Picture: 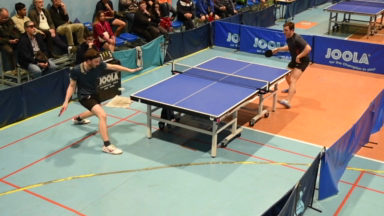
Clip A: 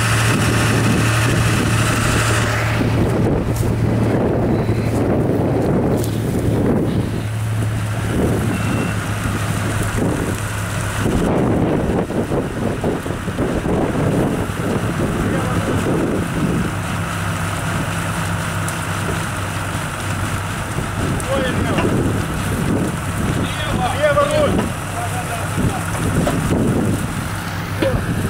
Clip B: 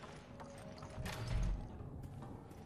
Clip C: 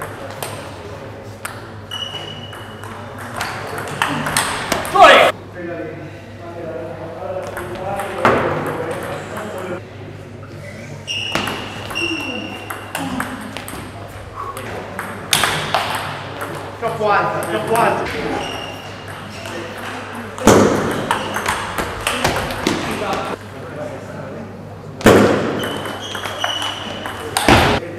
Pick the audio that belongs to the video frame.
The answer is C